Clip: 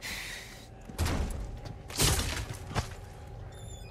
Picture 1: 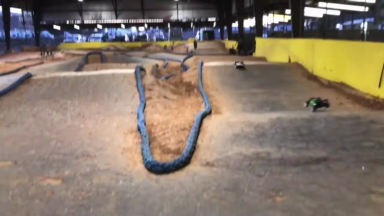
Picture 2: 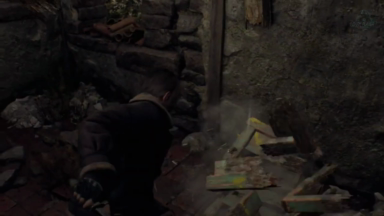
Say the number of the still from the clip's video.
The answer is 2